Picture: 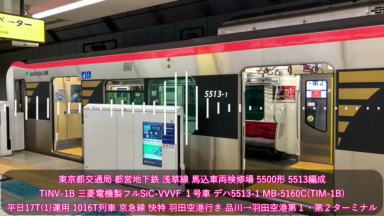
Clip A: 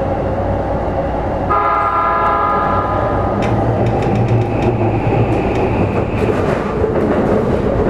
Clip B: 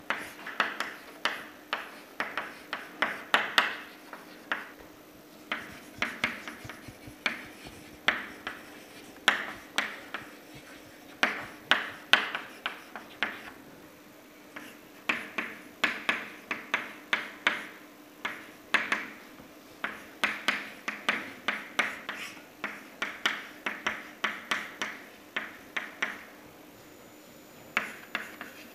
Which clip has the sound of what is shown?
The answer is A